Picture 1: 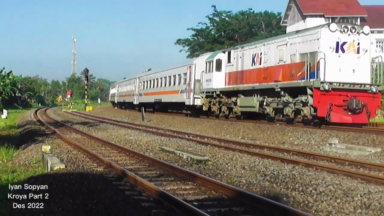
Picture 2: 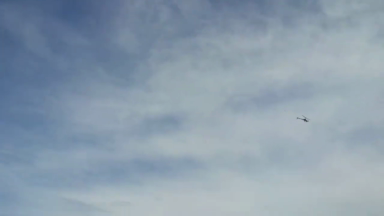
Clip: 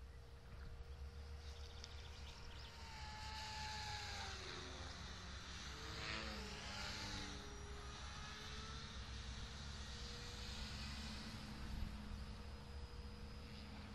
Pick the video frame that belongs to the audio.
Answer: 2